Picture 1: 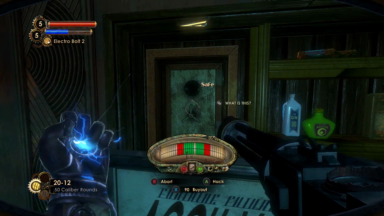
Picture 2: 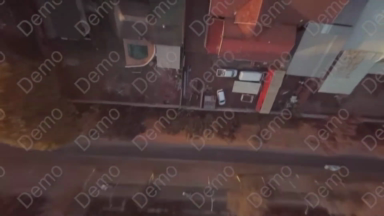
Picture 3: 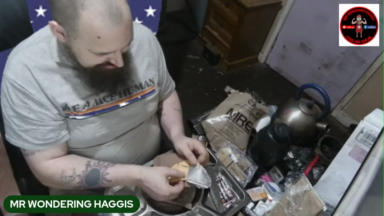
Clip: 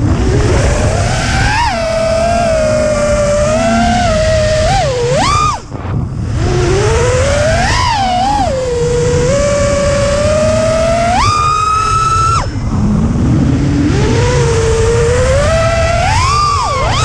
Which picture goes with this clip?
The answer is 2